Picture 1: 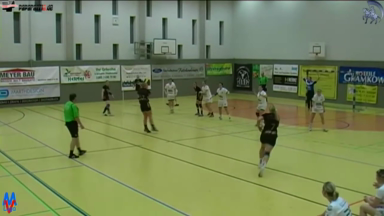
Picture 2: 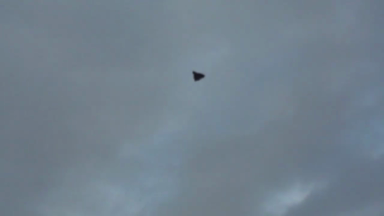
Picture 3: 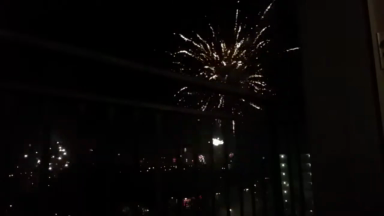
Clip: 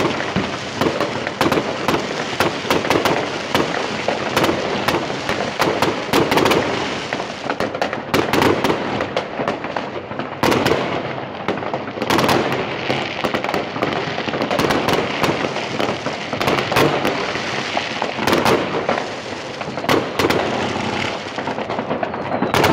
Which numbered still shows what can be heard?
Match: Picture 3